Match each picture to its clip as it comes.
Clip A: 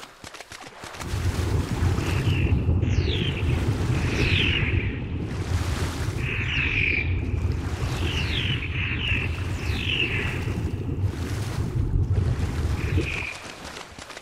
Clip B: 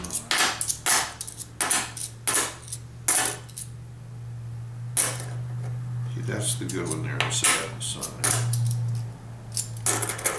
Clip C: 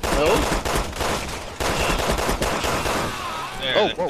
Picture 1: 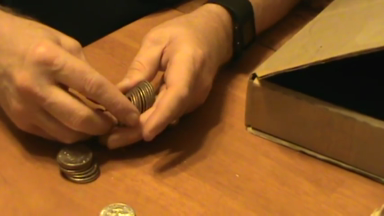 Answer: B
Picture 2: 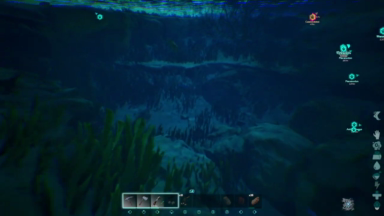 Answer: A